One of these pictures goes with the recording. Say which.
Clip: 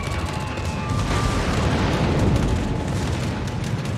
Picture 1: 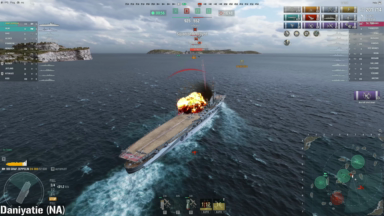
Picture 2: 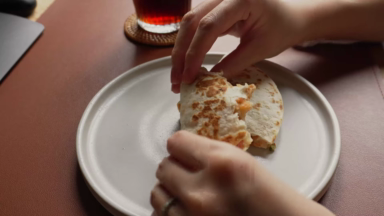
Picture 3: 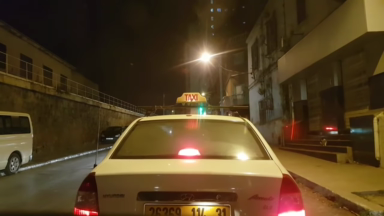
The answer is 1